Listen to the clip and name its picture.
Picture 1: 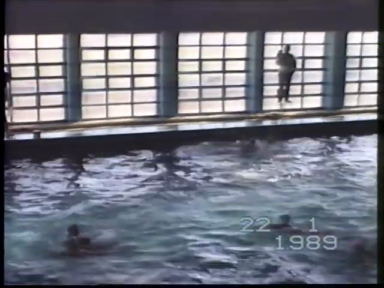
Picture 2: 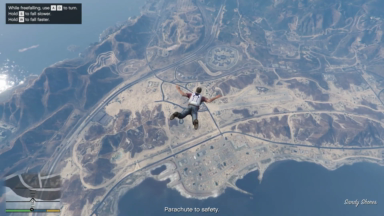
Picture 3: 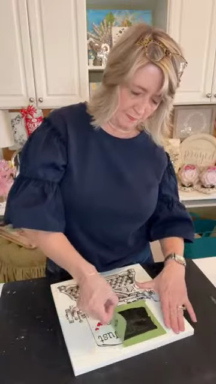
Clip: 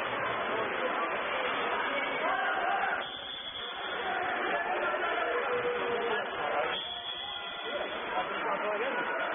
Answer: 1